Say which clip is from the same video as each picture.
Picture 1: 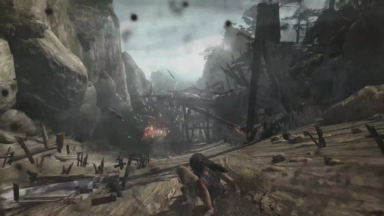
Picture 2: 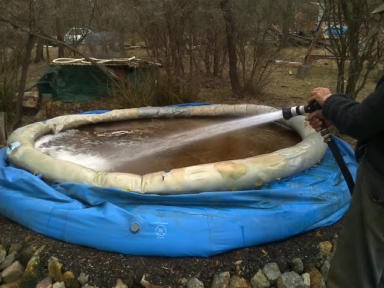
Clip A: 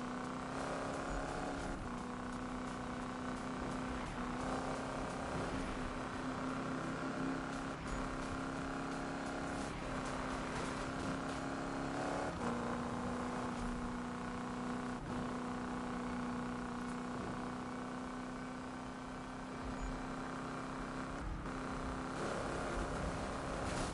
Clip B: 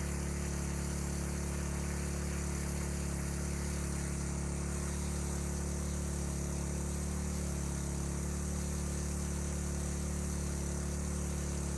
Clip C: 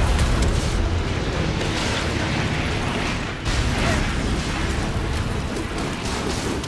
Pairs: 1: C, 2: B